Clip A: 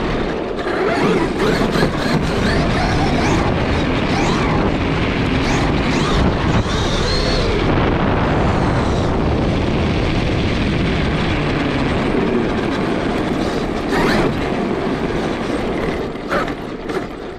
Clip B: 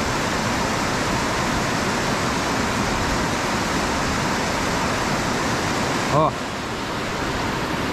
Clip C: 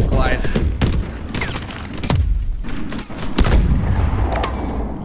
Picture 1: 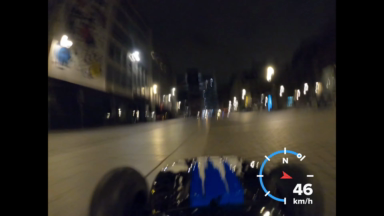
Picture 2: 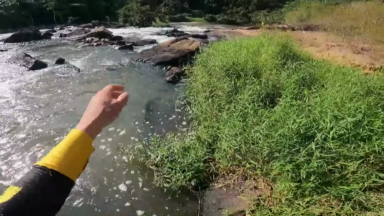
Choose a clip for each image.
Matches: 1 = A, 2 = B